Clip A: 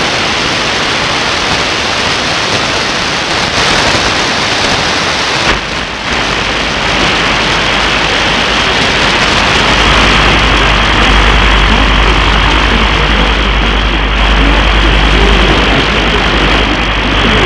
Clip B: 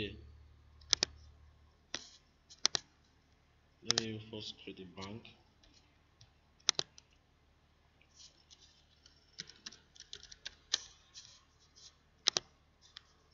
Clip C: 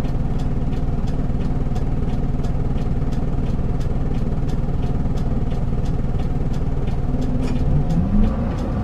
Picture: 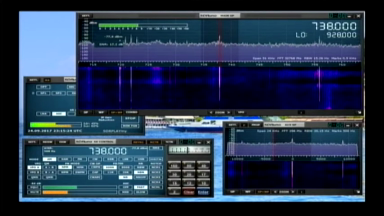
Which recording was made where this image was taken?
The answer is A